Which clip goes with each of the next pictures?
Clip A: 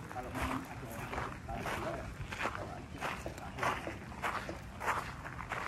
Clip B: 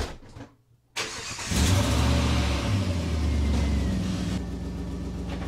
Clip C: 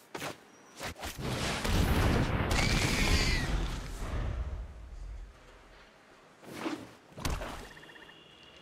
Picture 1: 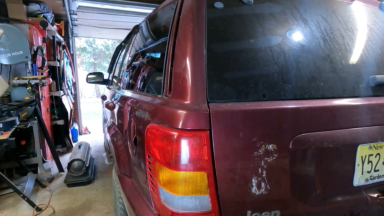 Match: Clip B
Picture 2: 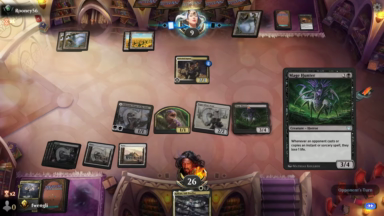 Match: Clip C